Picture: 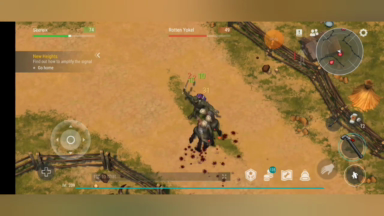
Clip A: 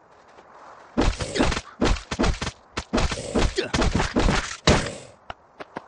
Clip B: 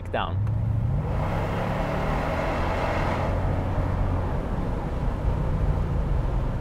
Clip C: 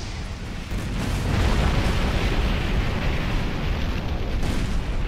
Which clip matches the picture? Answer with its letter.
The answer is A